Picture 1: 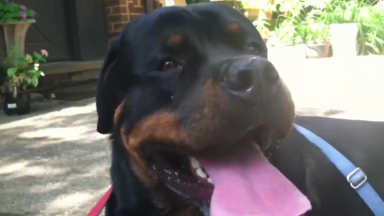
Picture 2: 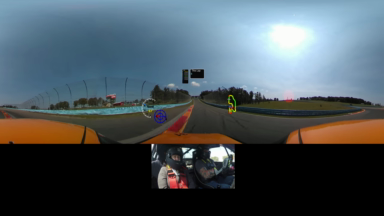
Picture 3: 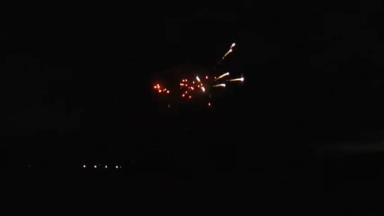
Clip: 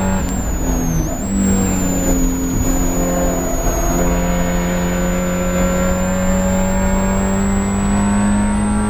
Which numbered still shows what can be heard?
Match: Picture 2